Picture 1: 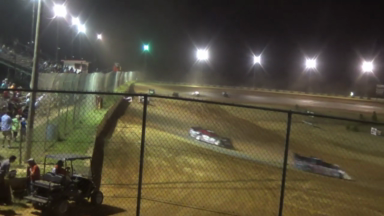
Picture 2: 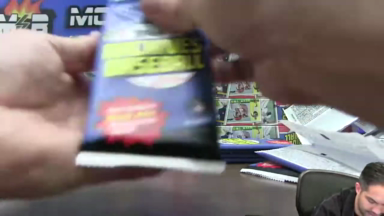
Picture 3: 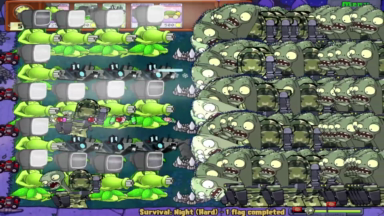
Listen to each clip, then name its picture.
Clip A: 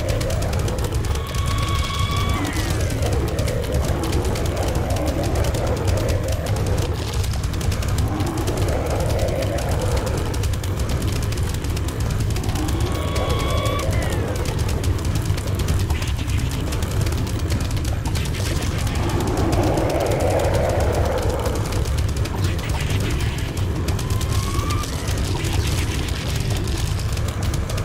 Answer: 3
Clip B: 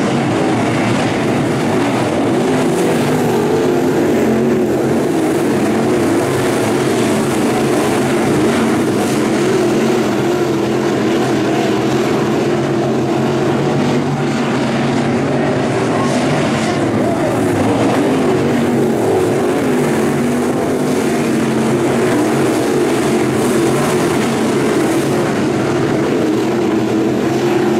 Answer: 1